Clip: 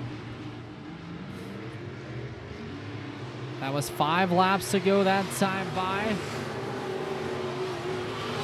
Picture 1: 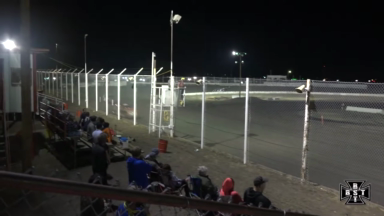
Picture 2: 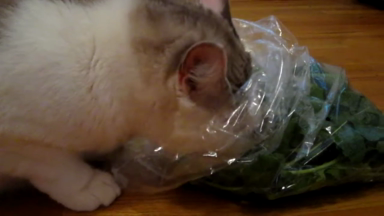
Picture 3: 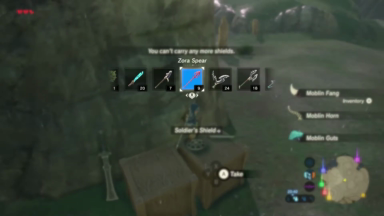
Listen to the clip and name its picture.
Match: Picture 1